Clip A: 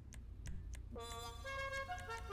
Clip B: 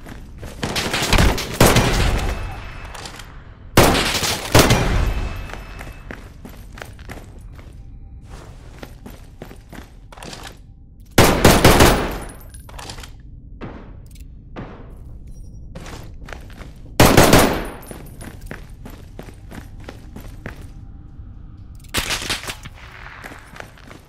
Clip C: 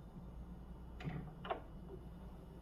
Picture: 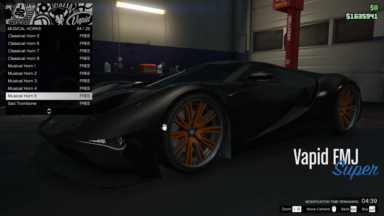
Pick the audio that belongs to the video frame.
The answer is A